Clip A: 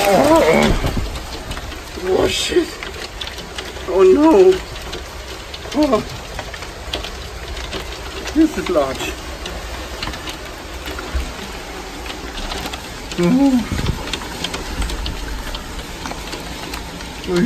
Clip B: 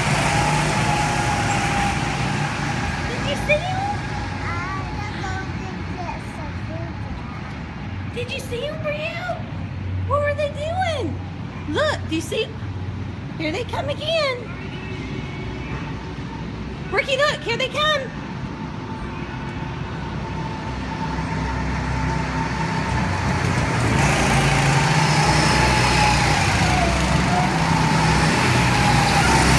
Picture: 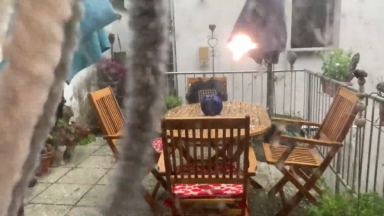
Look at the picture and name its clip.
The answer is A